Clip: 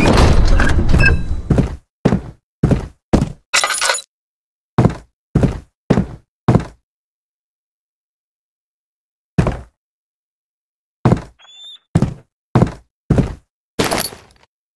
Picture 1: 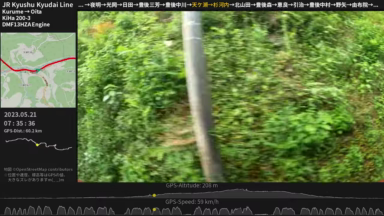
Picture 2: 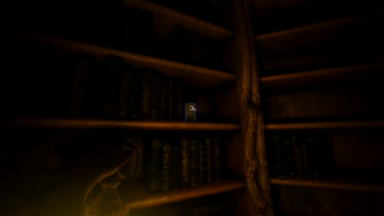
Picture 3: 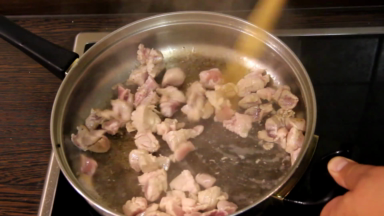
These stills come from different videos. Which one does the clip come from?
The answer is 2